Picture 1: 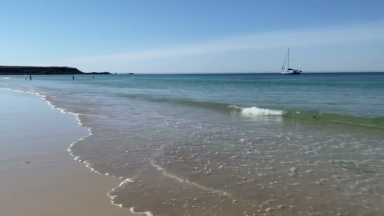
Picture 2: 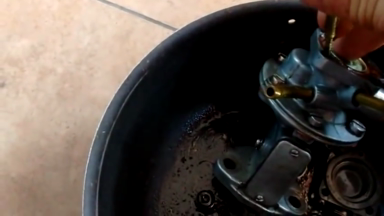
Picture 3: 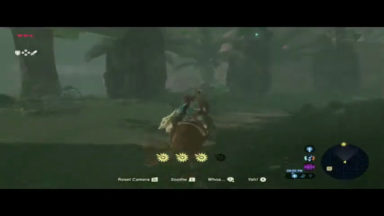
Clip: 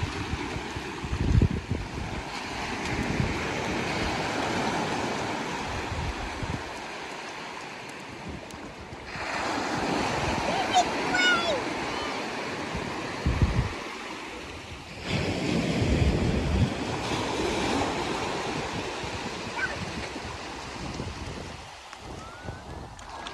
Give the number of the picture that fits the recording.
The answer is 1